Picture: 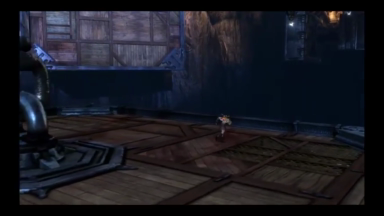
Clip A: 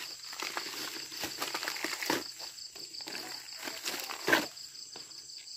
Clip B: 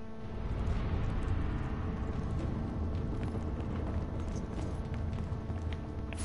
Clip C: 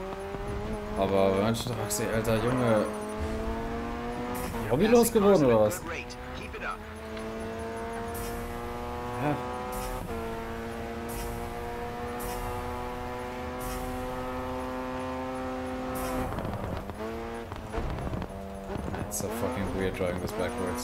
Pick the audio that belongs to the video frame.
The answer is B